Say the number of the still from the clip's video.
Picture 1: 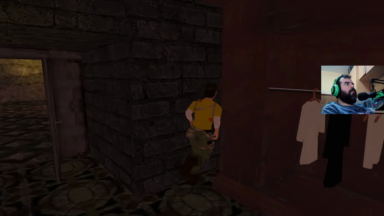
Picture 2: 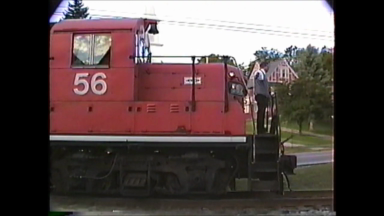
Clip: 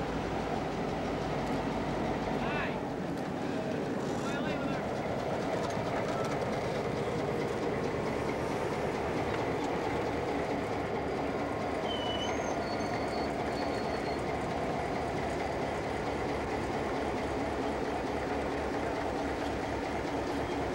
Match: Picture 2